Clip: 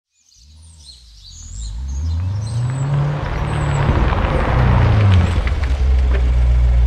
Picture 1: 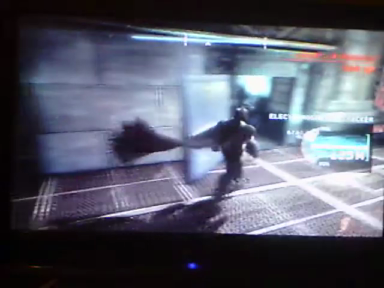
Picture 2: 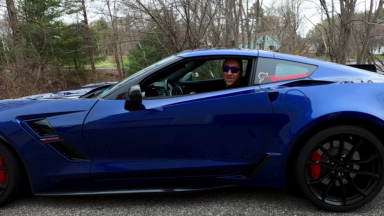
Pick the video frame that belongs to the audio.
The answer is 2